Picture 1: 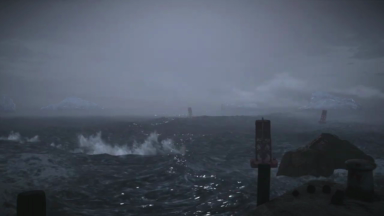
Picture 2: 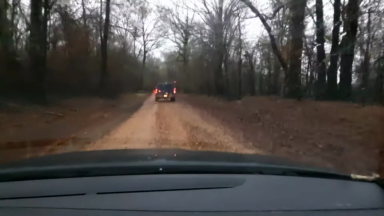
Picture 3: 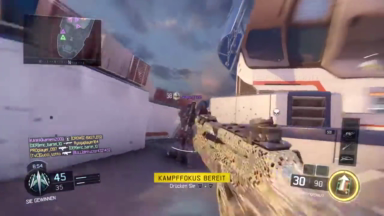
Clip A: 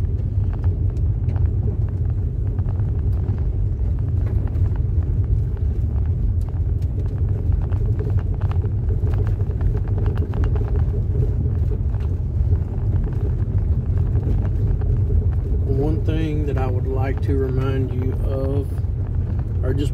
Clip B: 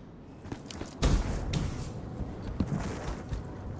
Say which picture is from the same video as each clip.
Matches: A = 2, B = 3